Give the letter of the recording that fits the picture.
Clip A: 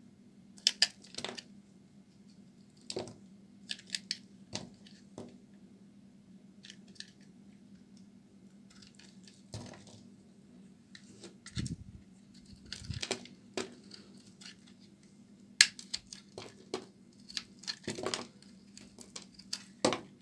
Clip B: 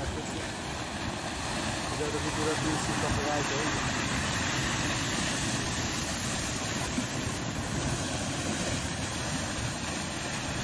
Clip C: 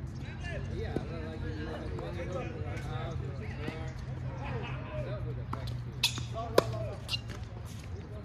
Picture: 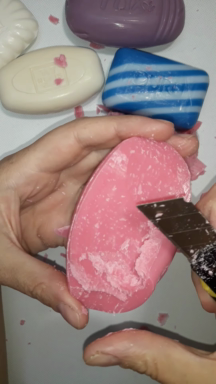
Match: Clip A